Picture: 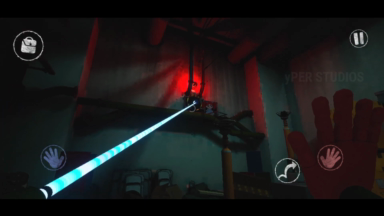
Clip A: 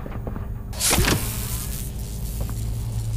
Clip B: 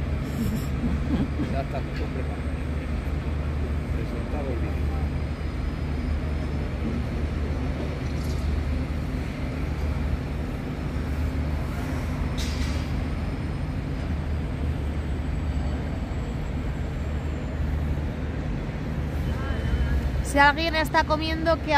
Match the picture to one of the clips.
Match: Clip A